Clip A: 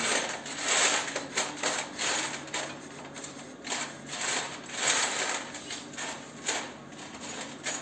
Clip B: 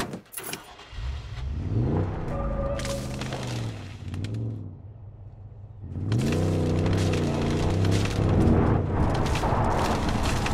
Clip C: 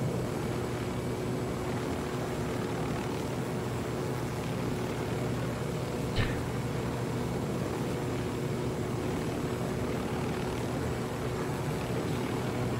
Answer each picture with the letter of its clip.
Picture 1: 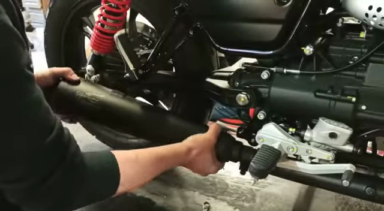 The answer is A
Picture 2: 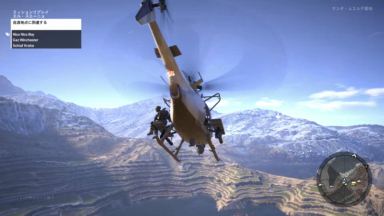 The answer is C